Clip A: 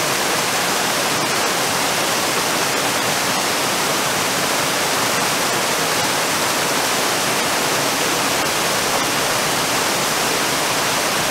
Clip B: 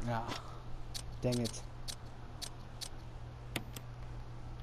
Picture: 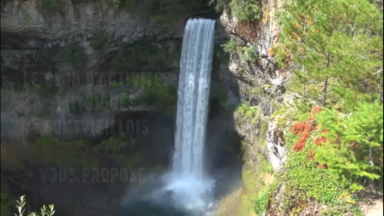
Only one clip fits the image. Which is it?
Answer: A